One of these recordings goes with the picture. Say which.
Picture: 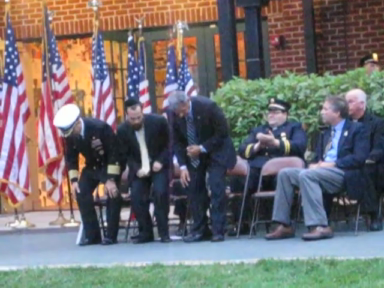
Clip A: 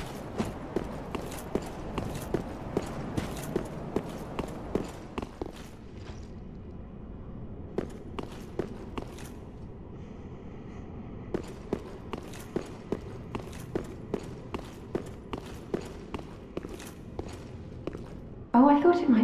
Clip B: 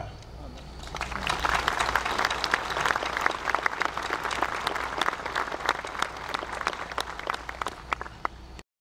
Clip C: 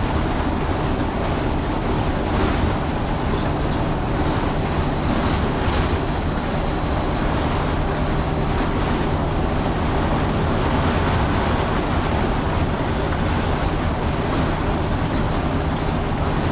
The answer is B